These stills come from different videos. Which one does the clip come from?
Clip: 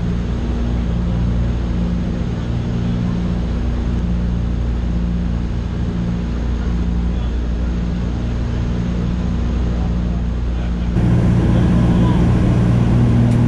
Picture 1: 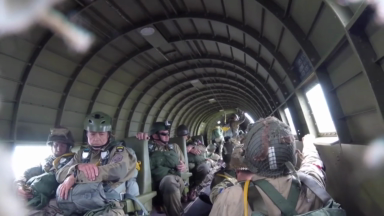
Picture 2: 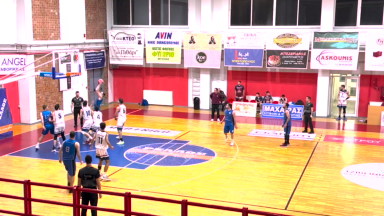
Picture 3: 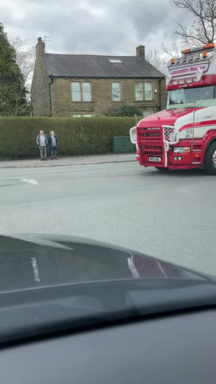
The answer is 1